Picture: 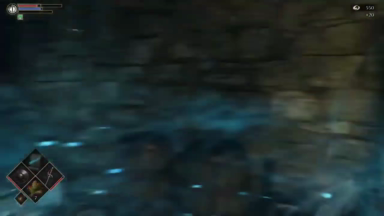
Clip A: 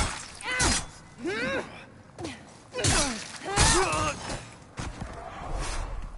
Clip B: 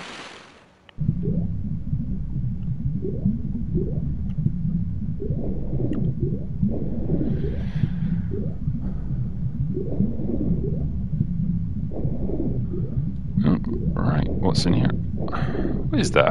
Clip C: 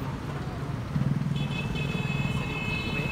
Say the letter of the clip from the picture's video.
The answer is A